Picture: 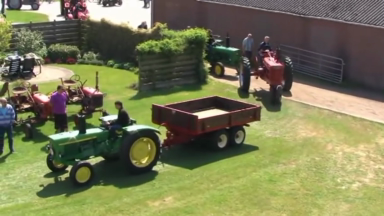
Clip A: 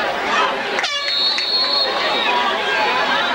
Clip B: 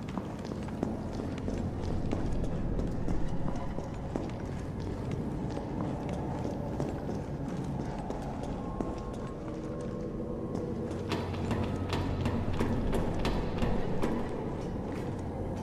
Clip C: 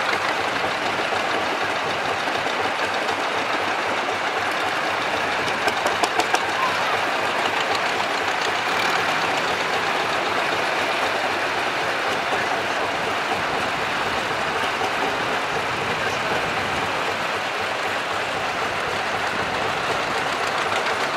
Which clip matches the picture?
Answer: C